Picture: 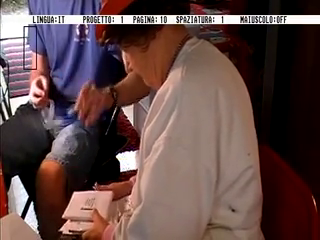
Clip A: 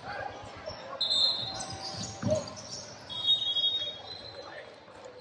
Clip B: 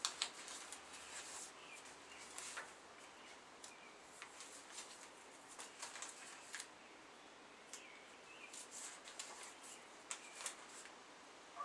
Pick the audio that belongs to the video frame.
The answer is B